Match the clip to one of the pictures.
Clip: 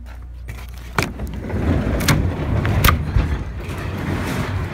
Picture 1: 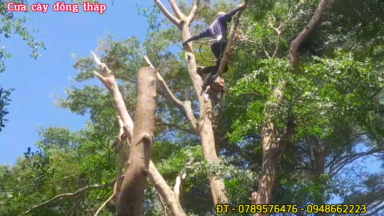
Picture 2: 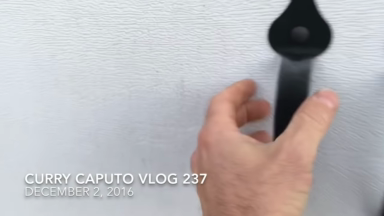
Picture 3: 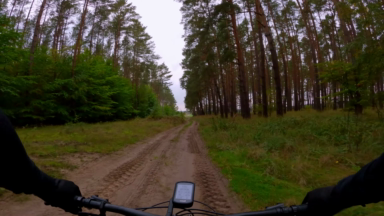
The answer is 2